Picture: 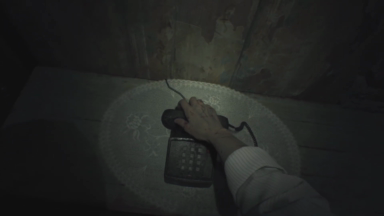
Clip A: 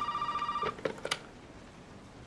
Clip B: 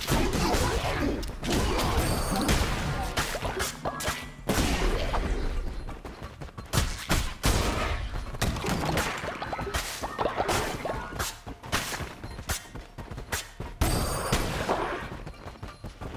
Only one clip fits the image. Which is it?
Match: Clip A